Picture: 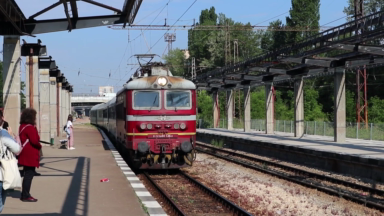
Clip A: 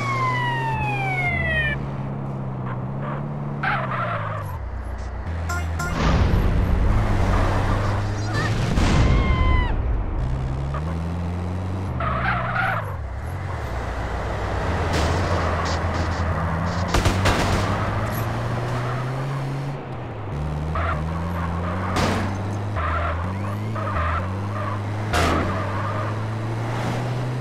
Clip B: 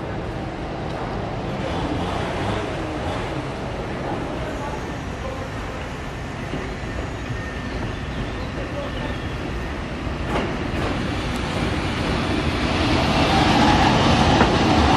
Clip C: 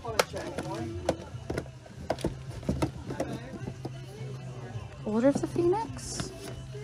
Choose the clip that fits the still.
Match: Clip B